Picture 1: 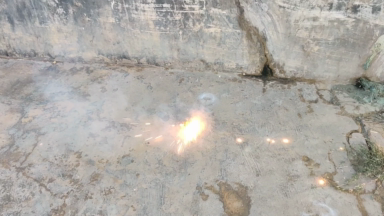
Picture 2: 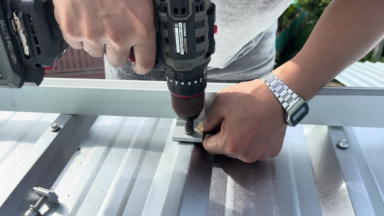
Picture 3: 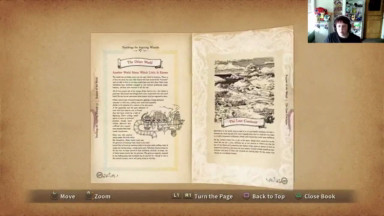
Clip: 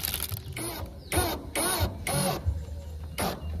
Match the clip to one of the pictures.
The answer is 2